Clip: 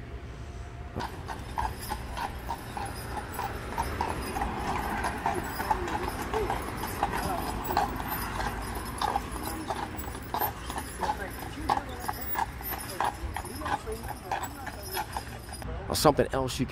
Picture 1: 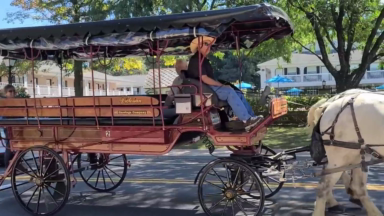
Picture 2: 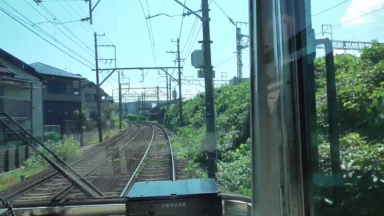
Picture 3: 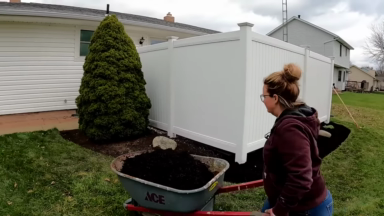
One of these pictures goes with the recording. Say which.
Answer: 1